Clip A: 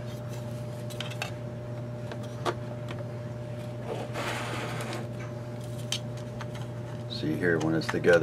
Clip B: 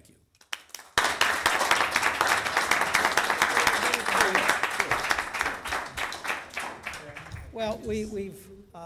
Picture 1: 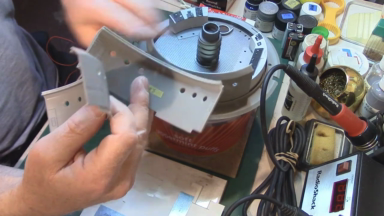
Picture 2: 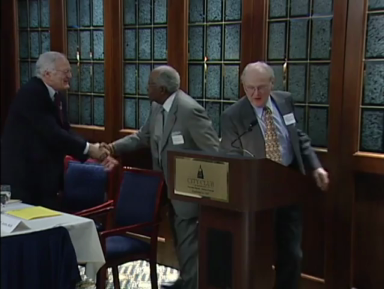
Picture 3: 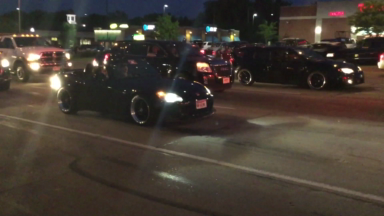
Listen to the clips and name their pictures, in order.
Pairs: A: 1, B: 2